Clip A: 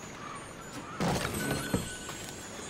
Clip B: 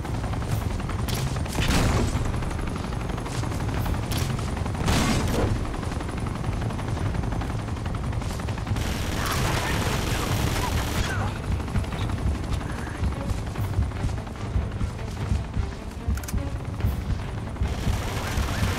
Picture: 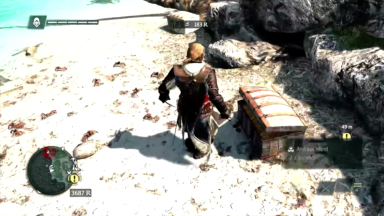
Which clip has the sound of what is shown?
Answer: A